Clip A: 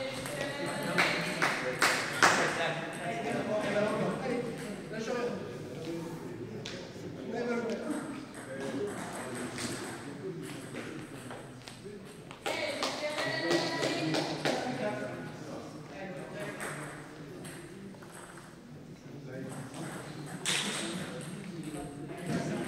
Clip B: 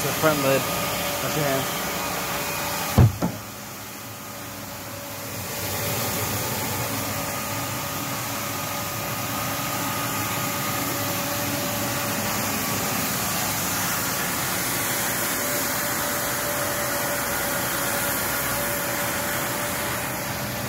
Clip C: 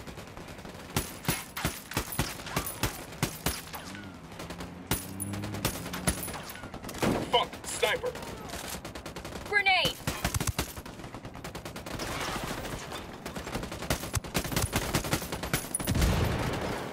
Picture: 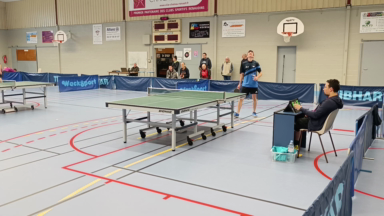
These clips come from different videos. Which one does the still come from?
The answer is A